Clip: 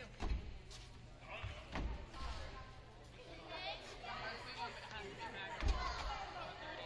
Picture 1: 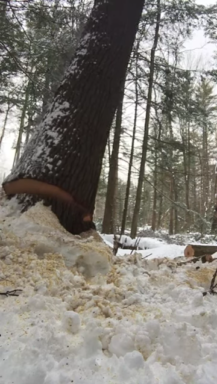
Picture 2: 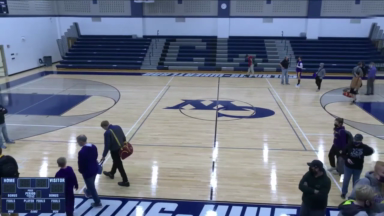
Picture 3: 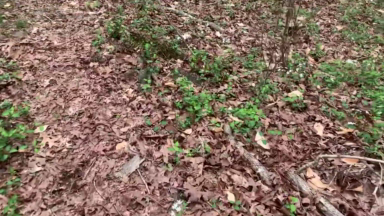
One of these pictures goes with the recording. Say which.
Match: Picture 2